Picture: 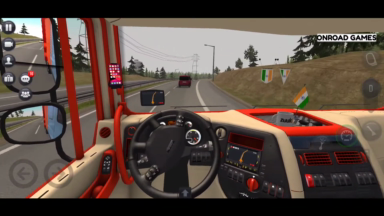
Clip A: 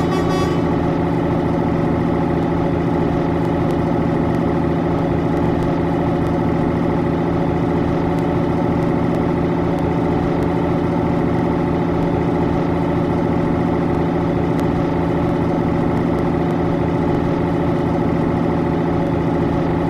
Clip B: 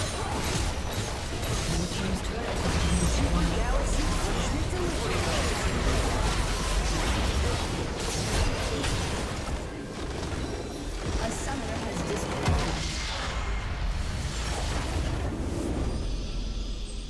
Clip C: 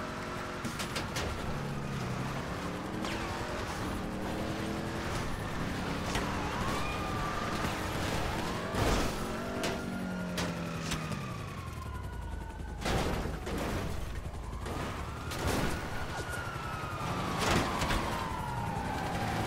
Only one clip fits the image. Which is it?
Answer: A